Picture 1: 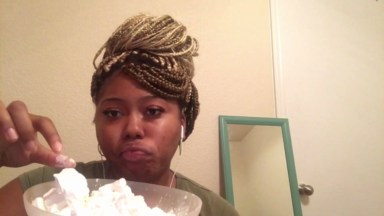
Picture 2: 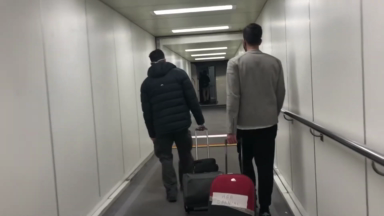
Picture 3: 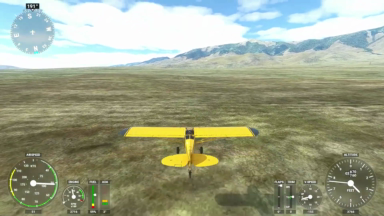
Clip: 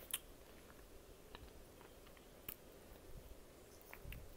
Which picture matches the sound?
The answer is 1